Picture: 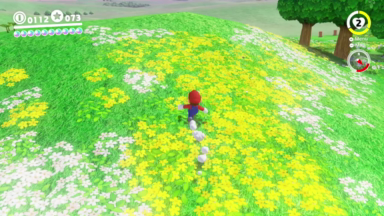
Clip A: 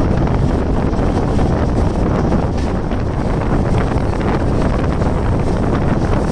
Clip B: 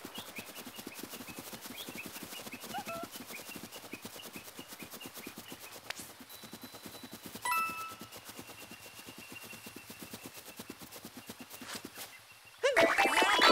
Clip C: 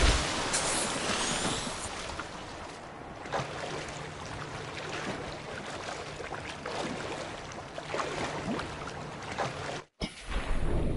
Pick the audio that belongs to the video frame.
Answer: B